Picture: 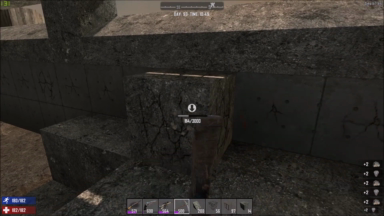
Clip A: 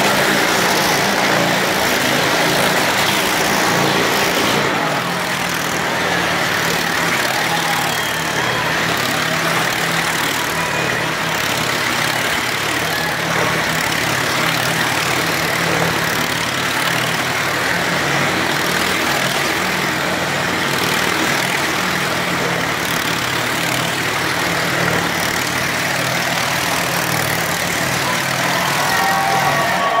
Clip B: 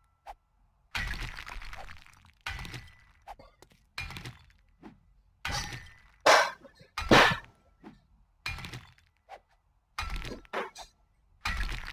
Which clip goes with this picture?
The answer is B